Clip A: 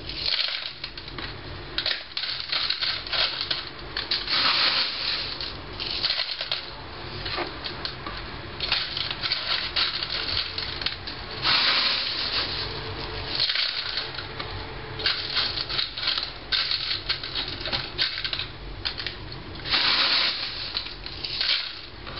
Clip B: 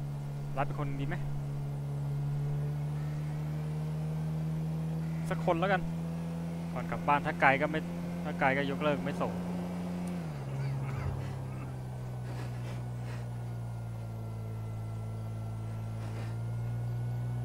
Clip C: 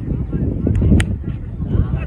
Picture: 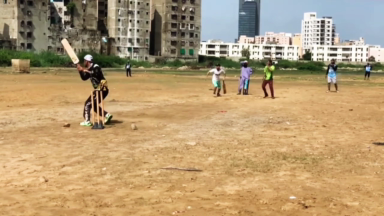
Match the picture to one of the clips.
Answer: C